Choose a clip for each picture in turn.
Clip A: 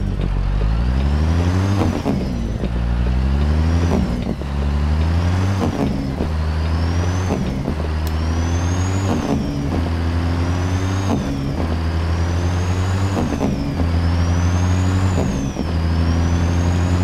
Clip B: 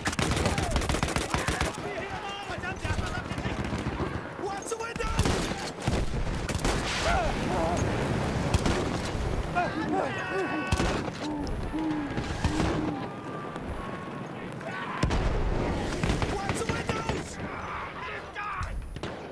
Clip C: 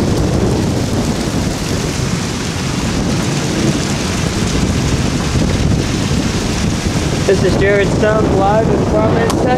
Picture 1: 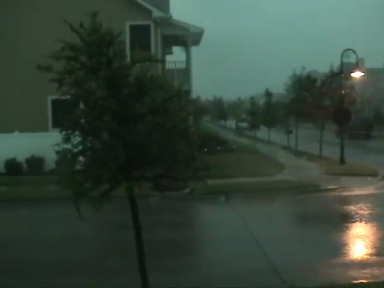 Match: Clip C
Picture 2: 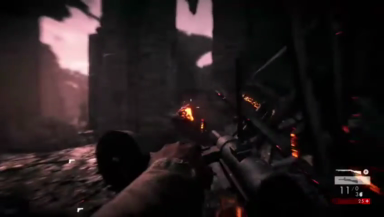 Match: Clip B